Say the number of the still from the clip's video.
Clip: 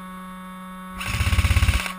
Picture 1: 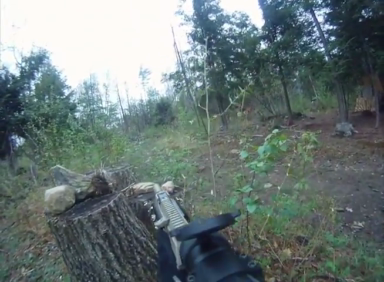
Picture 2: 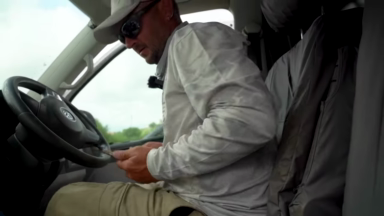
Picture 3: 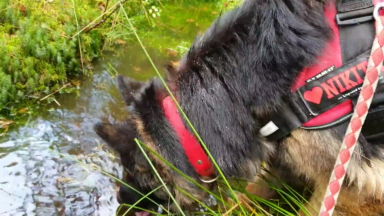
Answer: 1